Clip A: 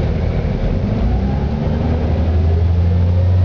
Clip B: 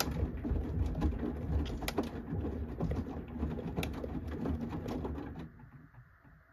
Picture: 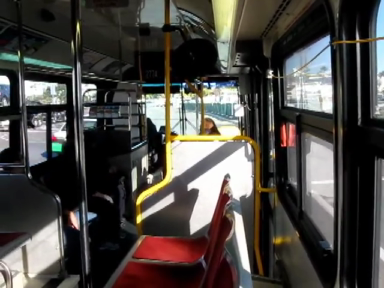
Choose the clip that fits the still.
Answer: A